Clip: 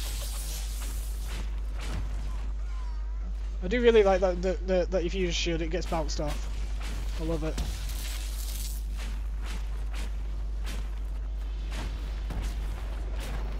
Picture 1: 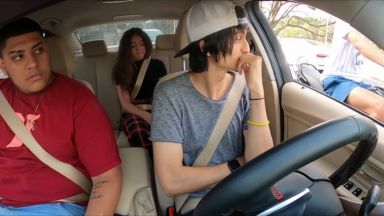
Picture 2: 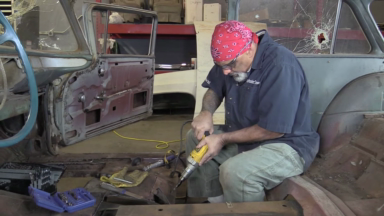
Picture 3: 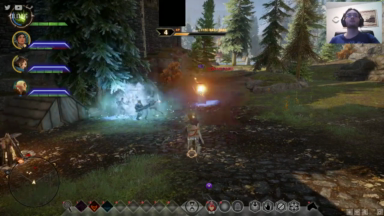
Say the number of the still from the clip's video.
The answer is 3